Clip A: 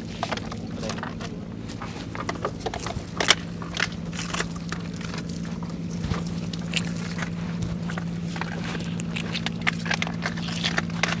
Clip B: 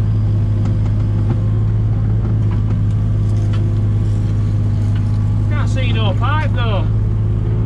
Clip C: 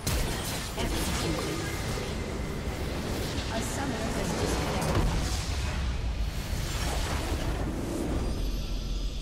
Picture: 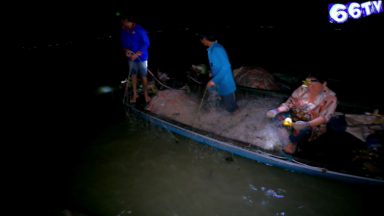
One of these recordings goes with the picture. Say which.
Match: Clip A